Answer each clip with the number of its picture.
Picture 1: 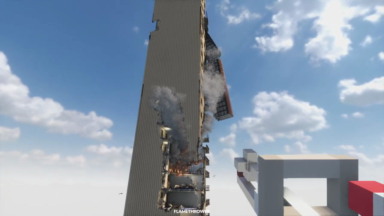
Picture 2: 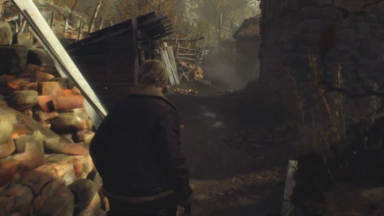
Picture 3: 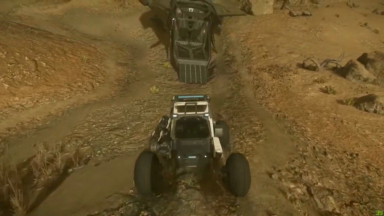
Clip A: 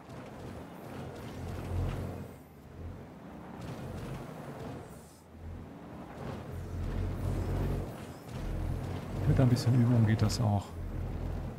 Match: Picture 3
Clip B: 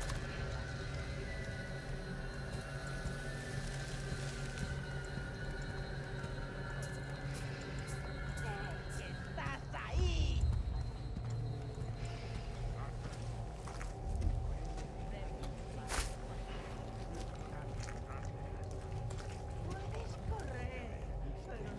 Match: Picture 2